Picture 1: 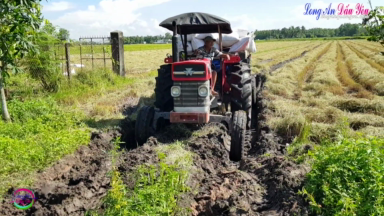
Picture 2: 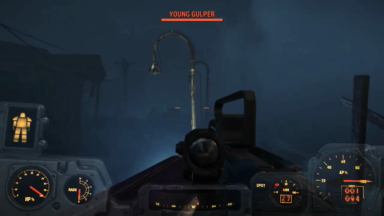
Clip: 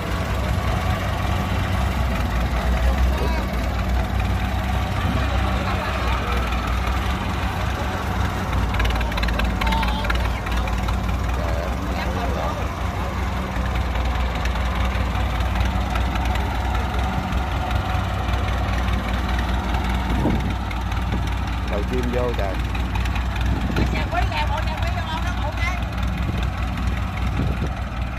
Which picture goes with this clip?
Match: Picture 1